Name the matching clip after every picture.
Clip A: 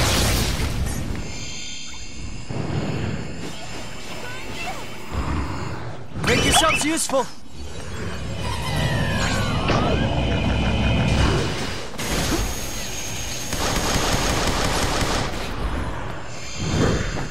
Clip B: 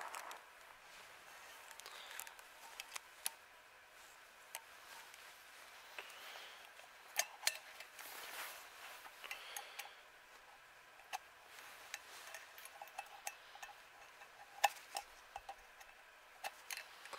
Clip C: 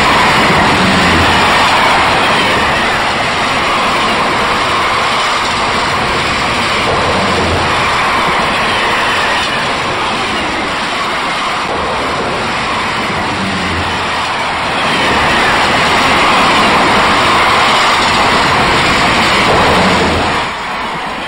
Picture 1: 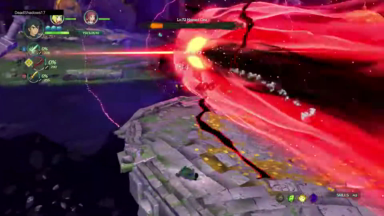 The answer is A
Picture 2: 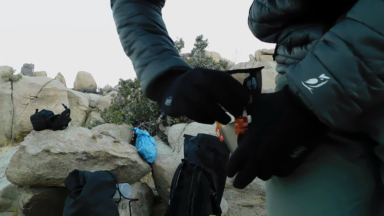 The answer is B